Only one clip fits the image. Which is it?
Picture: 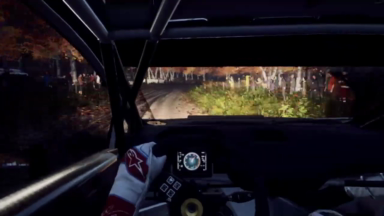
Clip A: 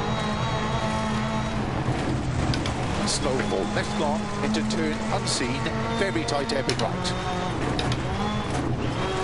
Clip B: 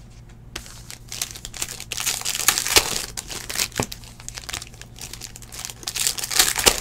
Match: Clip A